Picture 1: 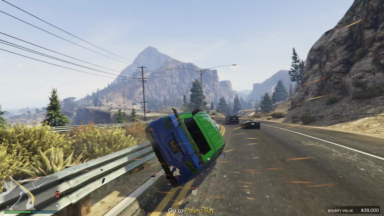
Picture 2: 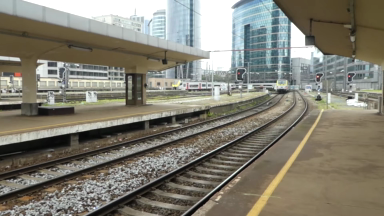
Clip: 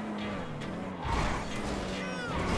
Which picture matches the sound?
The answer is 1